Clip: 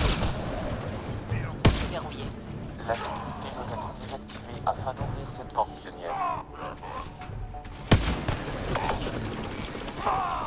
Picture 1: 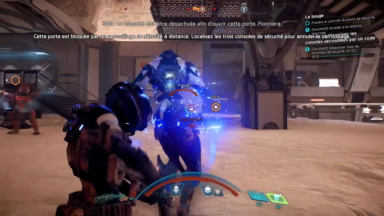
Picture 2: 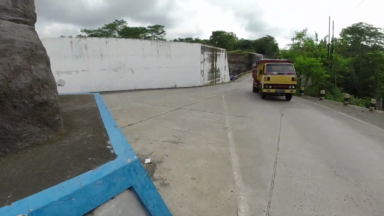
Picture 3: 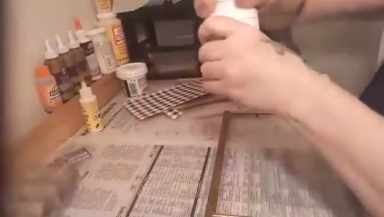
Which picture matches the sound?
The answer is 1